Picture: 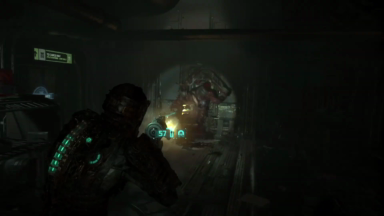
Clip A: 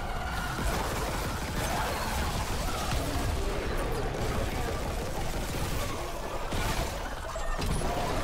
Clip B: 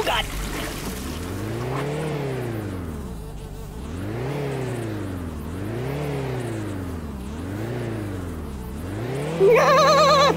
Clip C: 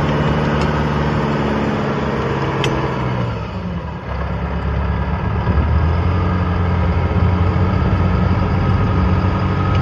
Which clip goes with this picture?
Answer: A